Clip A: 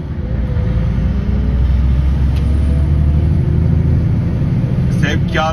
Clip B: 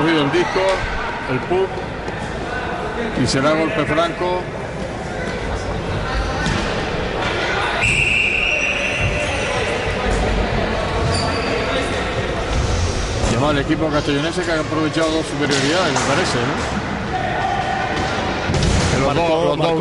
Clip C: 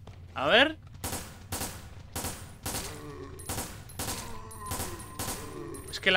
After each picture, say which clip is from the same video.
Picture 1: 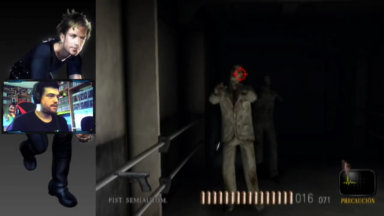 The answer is C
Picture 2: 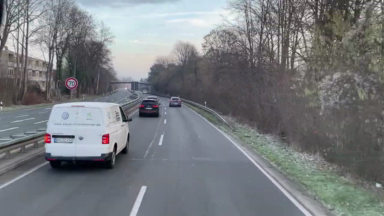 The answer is A